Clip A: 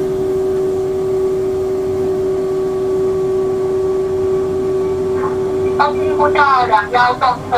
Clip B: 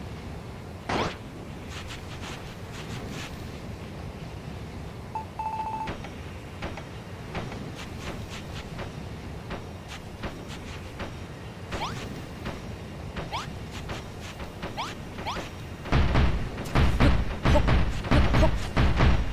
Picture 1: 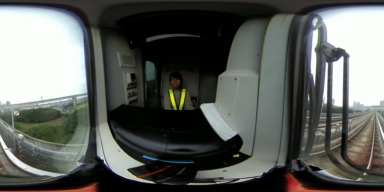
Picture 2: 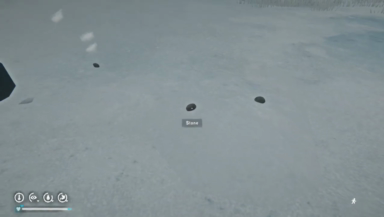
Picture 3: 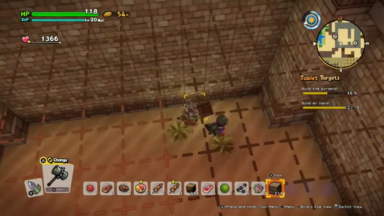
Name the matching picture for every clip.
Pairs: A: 1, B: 3